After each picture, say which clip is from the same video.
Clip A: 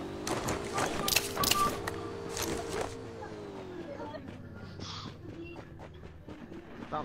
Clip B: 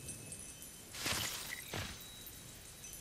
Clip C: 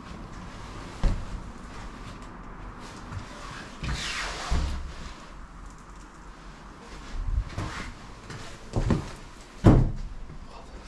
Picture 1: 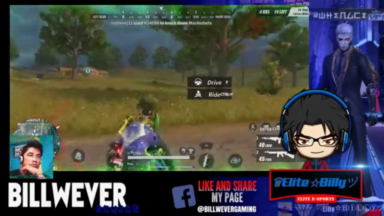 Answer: A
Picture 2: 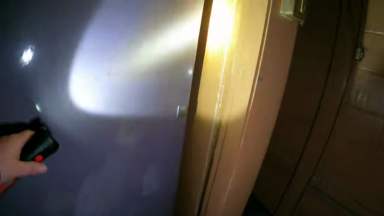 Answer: C